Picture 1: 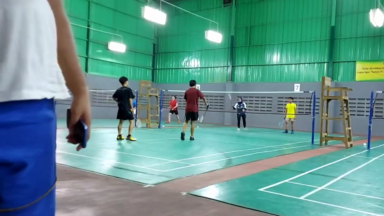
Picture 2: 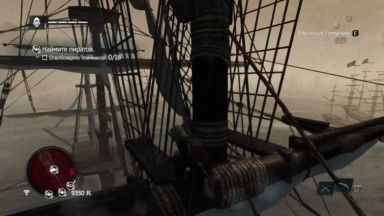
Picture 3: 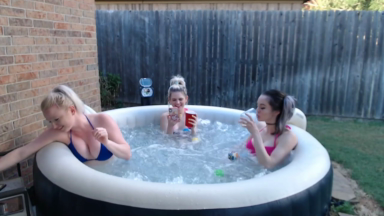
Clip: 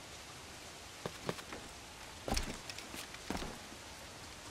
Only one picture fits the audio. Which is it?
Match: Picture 2